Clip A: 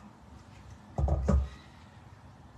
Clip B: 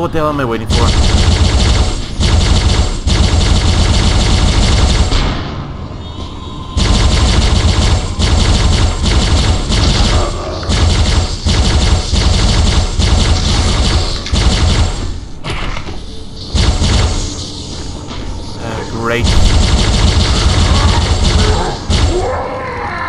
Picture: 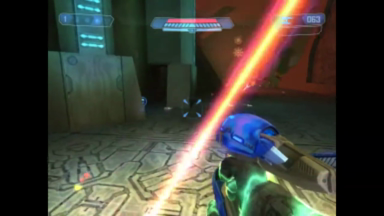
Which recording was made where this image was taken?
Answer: B